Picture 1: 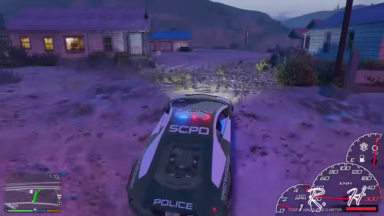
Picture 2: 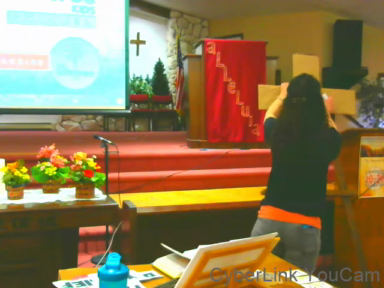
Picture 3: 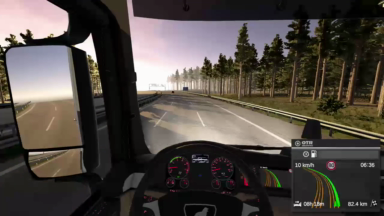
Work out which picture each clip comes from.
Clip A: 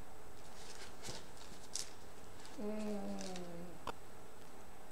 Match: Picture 2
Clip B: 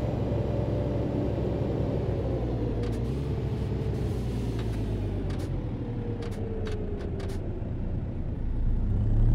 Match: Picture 3